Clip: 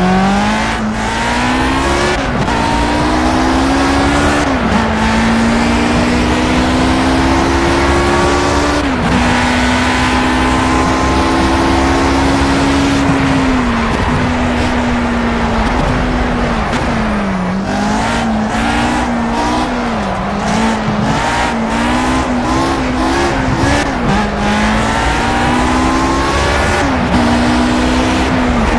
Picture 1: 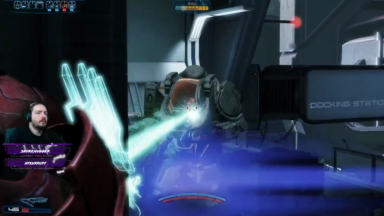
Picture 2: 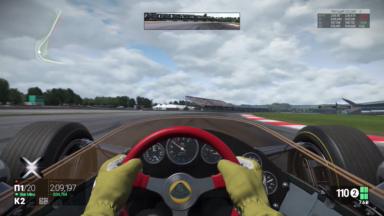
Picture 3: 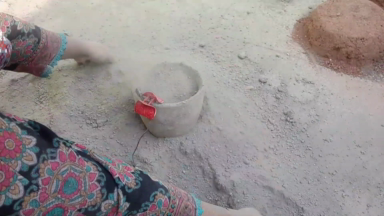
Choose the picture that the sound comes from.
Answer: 2